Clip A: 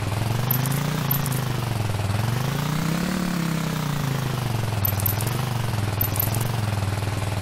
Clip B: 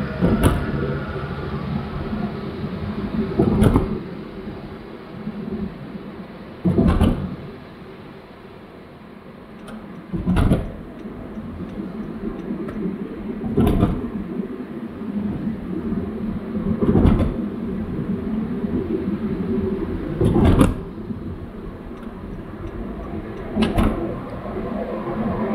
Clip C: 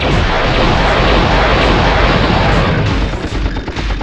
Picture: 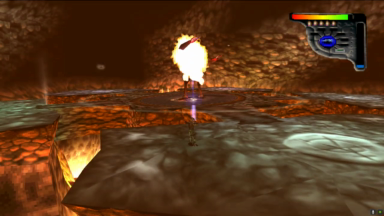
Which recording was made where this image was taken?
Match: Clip C